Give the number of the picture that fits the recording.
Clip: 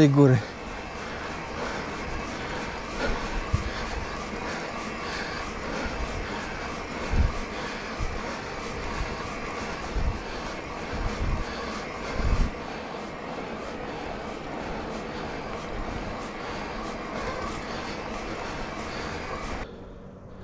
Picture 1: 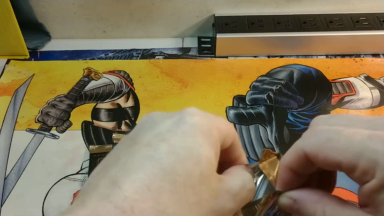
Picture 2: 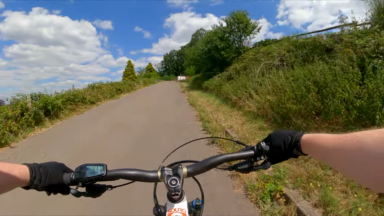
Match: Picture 2